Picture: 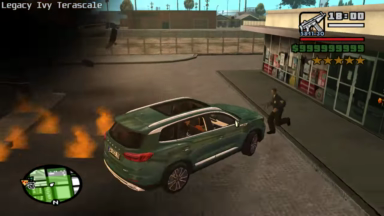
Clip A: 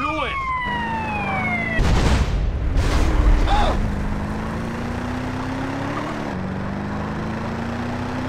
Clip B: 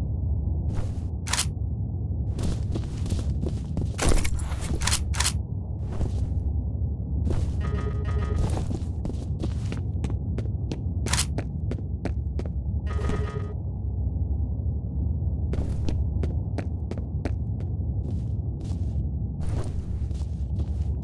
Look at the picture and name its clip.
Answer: A